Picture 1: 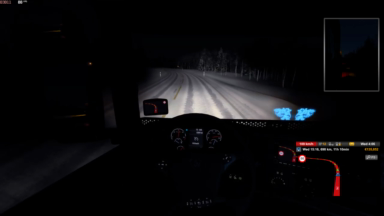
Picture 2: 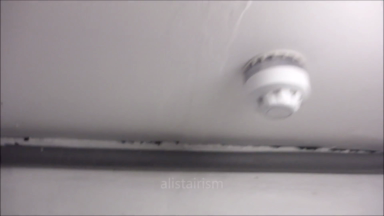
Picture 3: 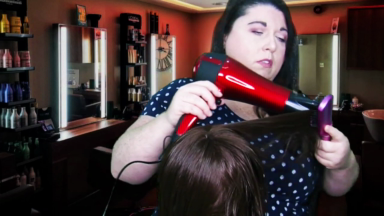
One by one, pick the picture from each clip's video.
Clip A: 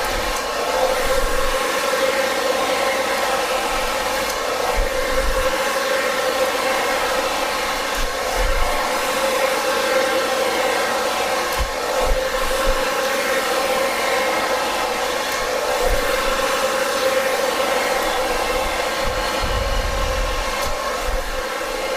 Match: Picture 3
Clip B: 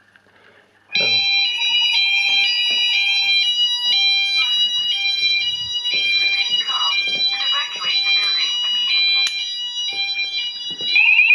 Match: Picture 2